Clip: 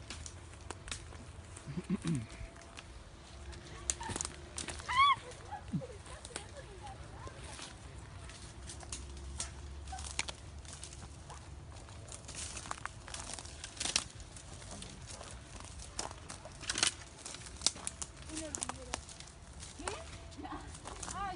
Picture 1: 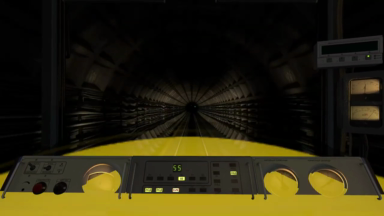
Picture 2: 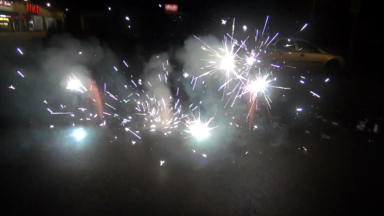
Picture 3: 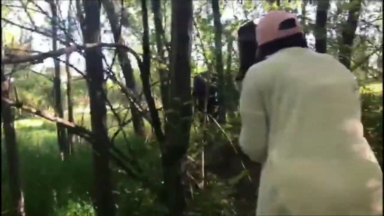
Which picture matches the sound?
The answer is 3